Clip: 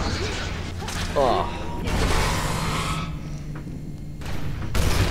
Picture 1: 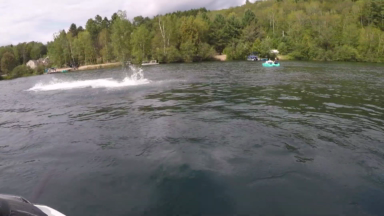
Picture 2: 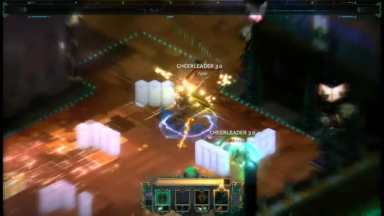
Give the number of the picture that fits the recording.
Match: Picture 2